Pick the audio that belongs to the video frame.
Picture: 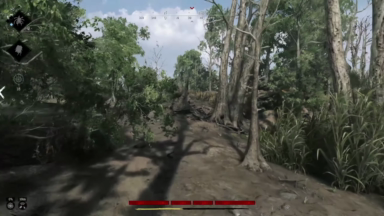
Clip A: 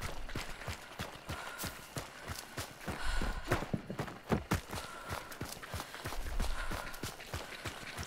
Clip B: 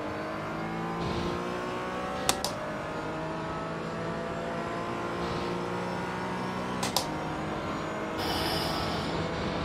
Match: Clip A